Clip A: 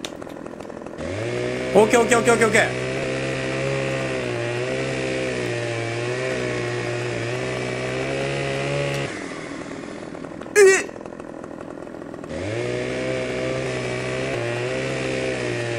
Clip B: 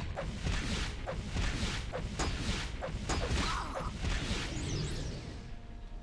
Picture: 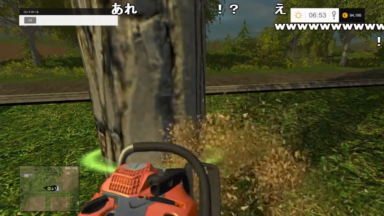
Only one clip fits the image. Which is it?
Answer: A